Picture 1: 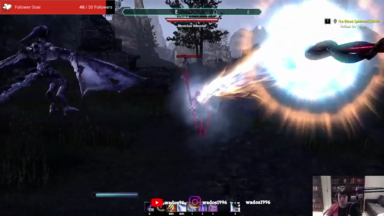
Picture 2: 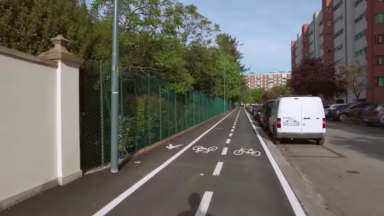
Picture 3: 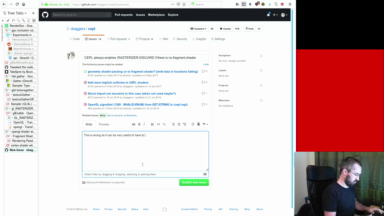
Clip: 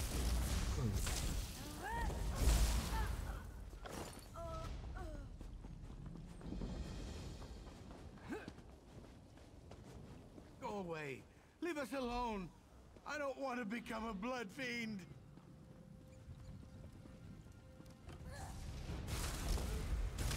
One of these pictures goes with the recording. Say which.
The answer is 1